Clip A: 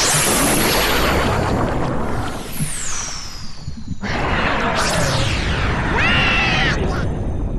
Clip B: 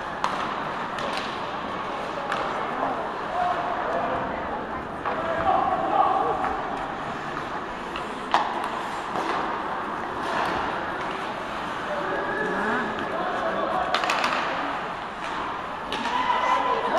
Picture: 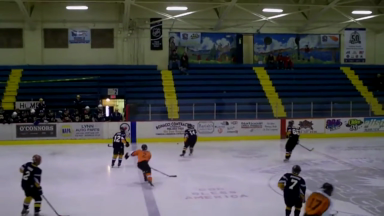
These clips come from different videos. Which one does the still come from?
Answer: B